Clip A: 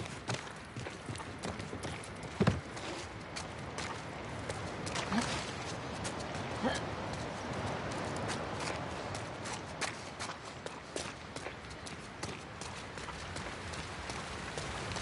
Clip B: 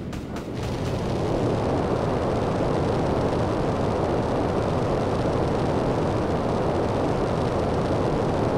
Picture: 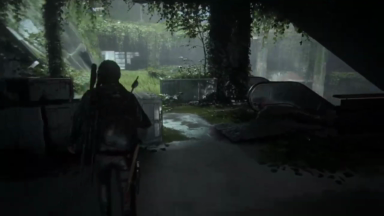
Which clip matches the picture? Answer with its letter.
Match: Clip A